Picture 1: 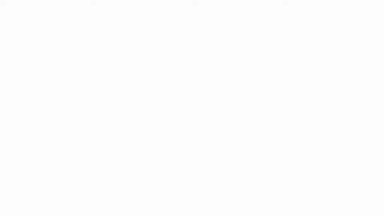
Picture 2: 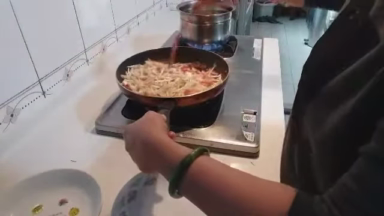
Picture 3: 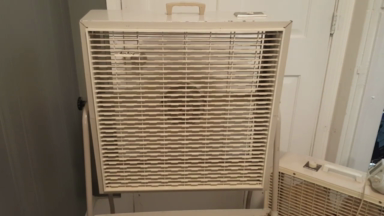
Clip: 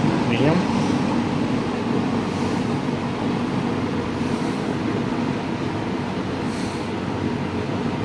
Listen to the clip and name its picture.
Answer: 3